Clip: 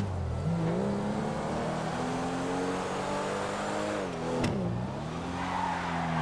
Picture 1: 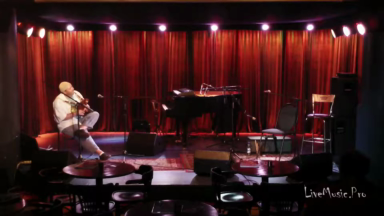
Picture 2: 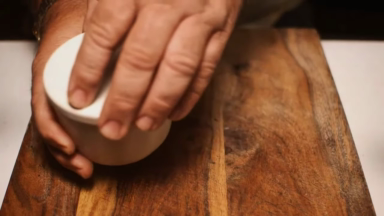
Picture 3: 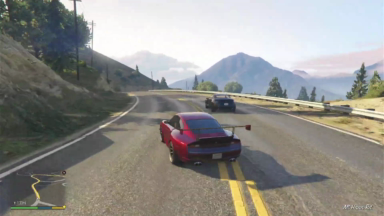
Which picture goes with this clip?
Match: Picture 3